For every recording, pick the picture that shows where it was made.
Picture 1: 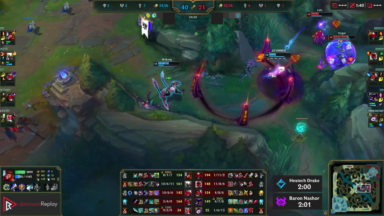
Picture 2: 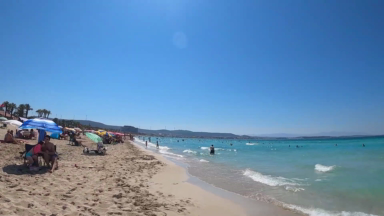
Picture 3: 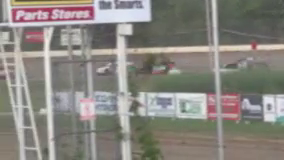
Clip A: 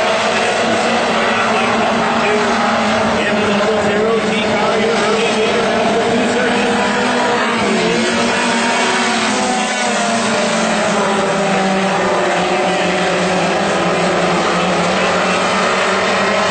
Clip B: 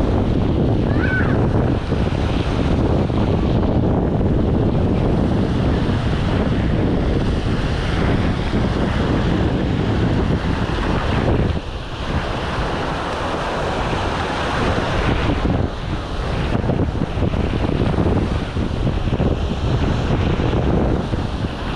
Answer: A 3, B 2